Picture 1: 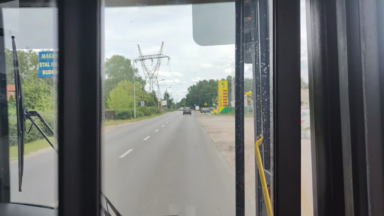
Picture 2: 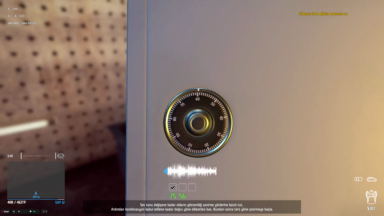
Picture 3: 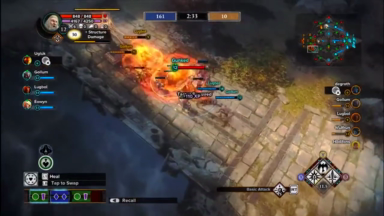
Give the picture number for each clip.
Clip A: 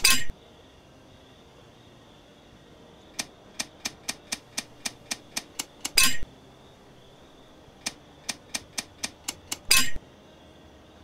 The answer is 2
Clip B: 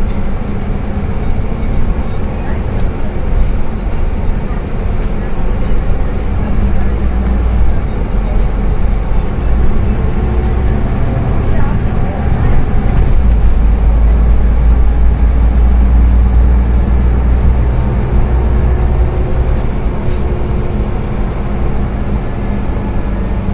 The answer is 1